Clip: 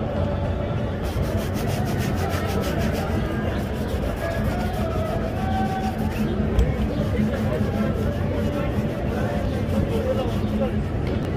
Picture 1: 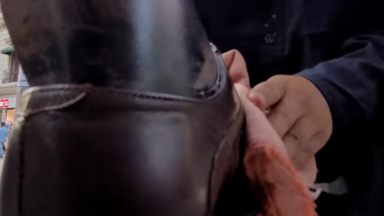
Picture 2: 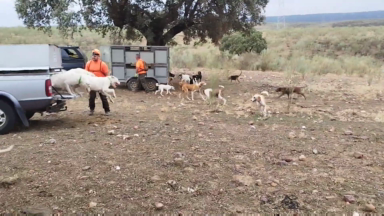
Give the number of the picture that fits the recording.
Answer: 1